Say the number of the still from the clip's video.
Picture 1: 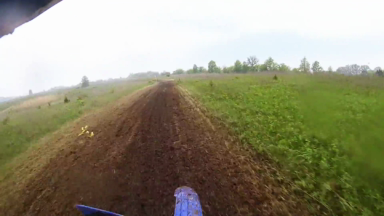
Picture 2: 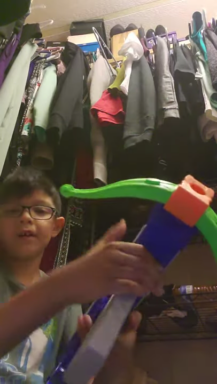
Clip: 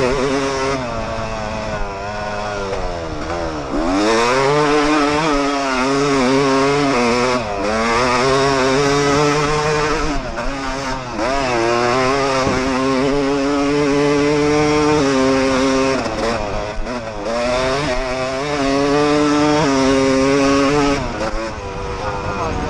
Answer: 1